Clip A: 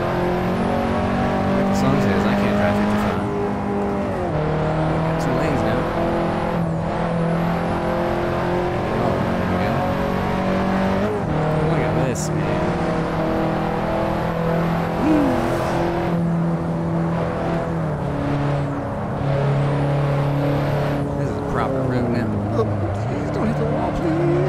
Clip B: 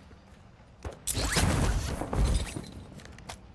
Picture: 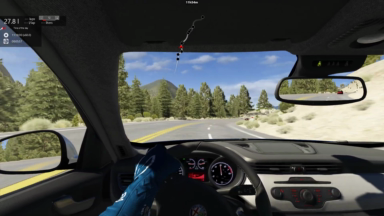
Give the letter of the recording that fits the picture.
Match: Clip A